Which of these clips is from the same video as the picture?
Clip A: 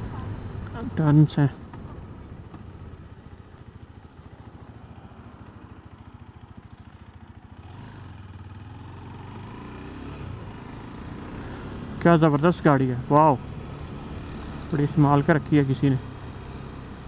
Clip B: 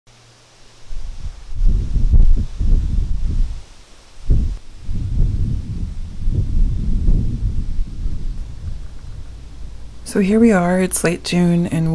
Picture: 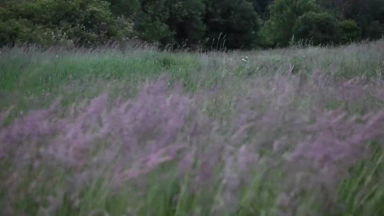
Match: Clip B